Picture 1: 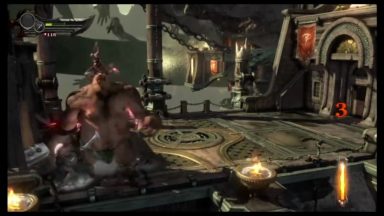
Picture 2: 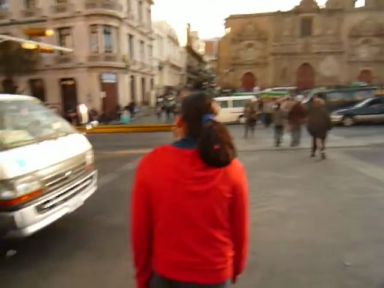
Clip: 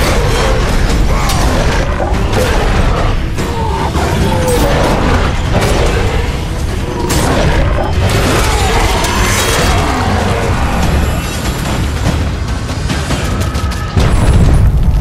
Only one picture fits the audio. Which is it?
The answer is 1